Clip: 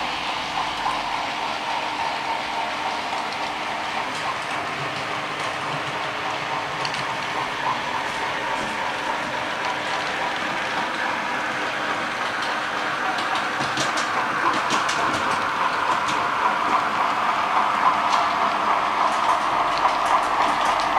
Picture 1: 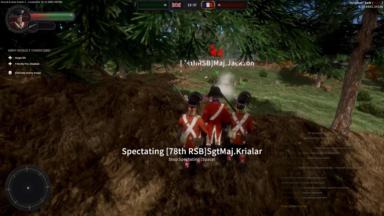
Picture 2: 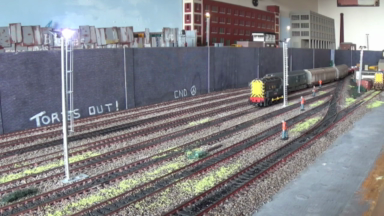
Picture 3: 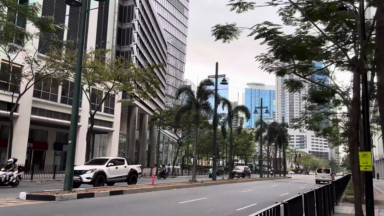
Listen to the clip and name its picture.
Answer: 2